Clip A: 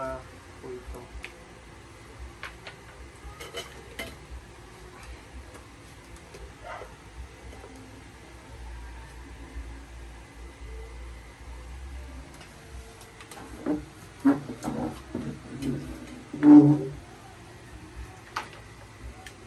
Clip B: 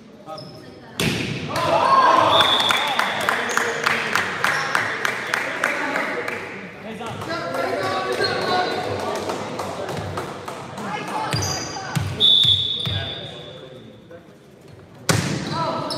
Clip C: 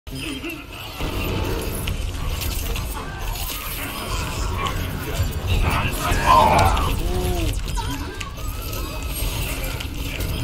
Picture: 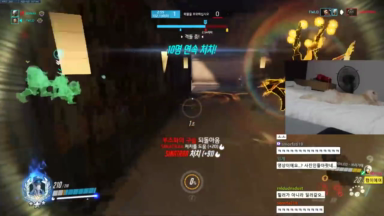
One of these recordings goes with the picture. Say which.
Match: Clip C